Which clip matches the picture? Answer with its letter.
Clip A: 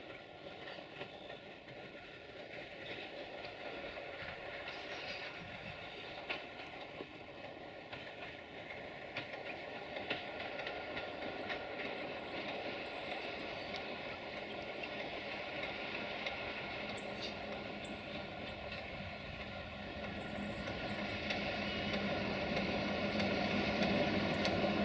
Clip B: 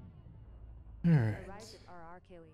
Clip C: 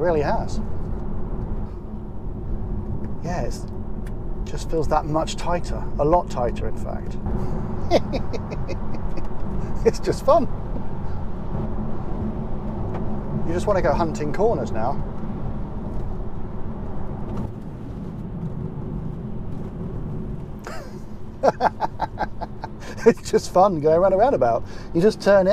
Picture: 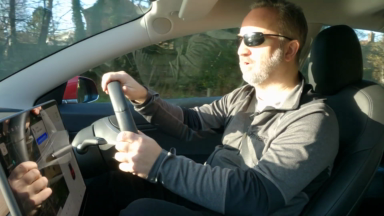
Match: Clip C